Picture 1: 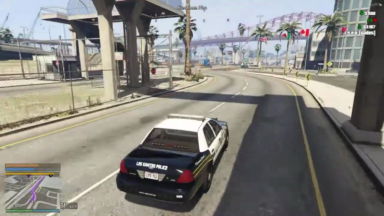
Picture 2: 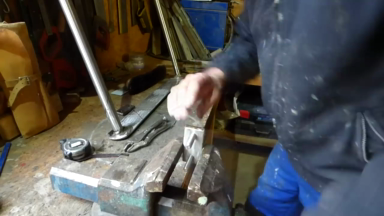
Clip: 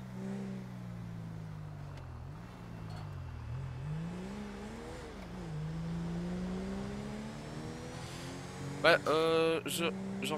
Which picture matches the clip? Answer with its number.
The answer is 1